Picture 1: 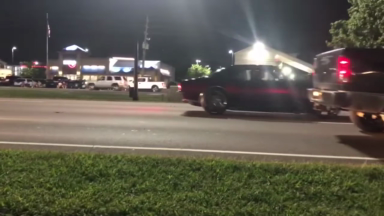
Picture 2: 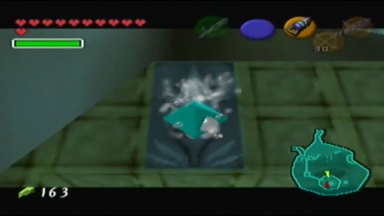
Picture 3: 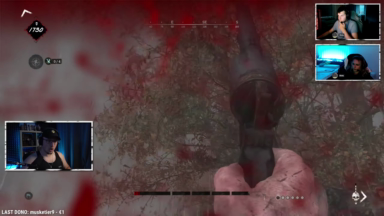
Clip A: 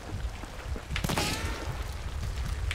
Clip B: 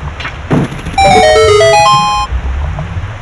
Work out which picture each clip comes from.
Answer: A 3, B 2